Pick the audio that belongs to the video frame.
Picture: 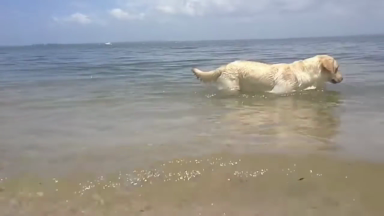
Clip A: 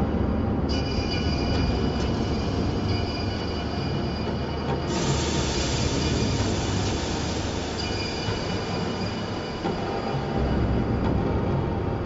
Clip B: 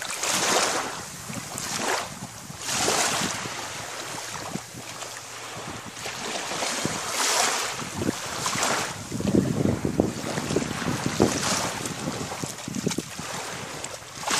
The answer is B